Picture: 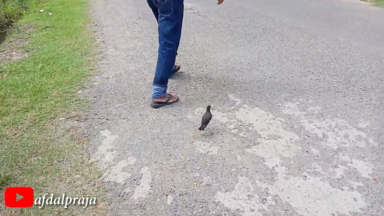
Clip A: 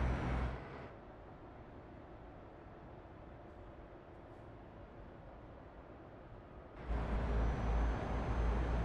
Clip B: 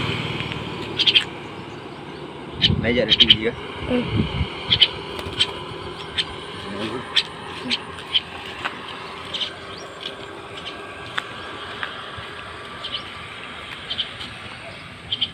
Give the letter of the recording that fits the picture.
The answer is B